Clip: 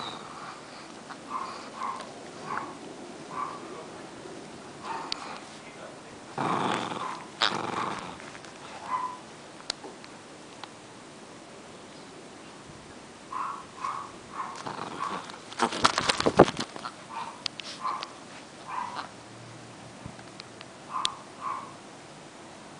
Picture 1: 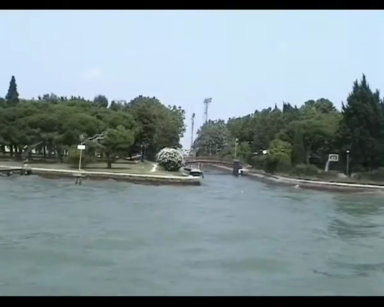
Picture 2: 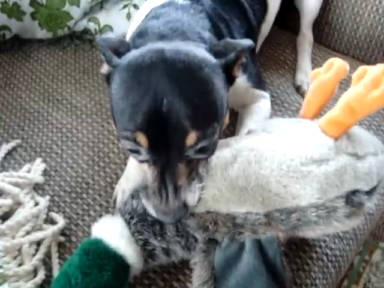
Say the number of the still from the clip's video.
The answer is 2